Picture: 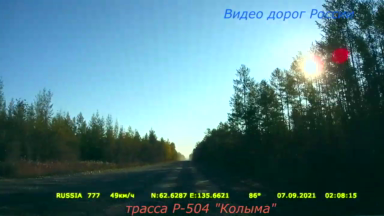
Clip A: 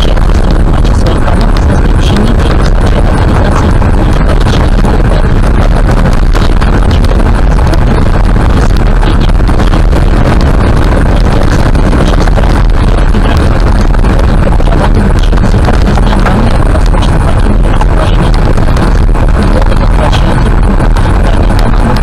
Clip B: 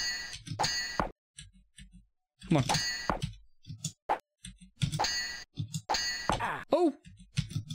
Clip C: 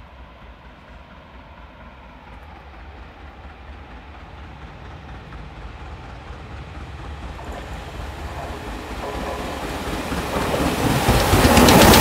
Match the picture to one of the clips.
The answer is A